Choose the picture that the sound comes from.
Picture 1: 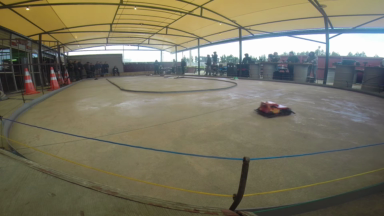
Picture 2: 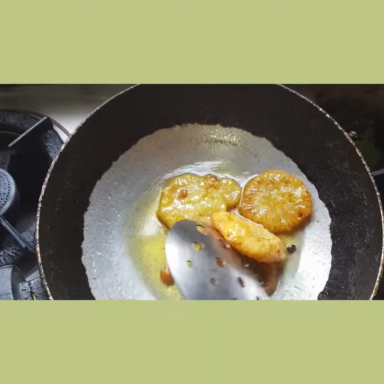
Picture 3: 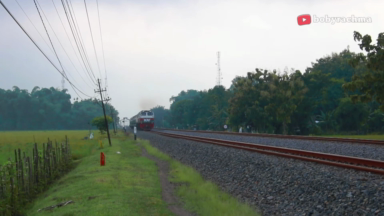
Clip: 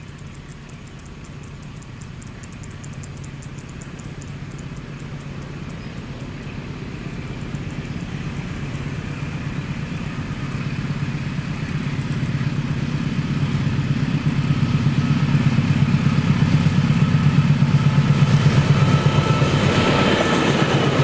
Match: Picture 3